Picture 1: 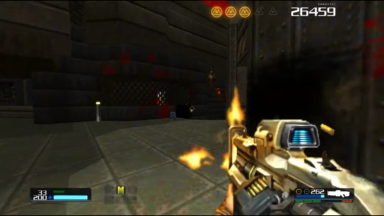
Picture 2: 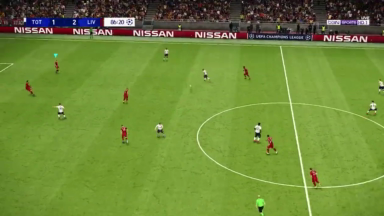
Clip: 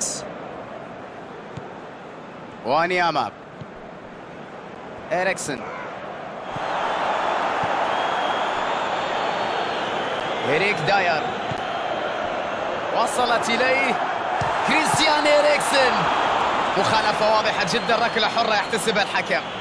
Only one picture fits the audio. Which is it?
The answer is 2